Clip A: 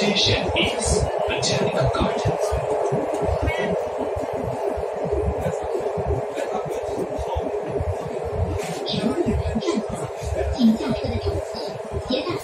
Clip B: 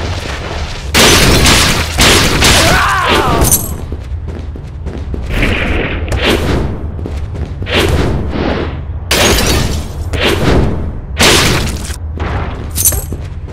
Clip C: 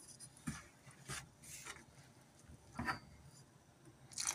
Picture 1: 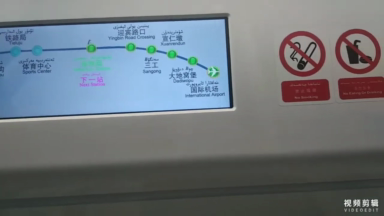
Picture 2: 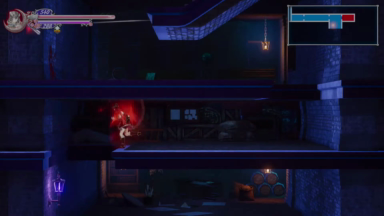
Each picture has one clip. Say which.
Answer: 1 A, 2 B